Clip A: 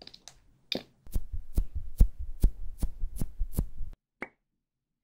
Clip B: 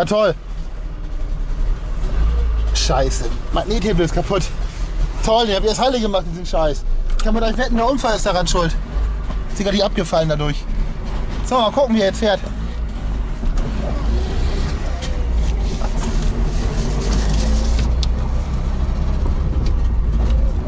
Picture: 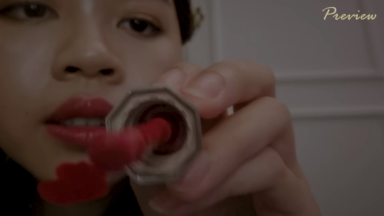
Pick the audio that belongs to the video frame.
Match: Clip A